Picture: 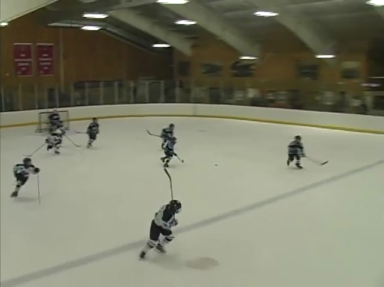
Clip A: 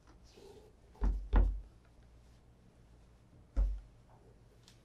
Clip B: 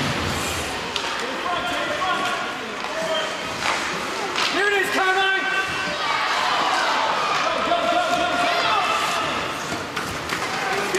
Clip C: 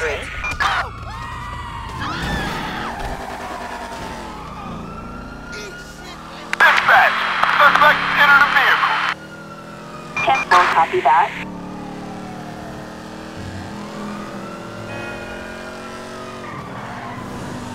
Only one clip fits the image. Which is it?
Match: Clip B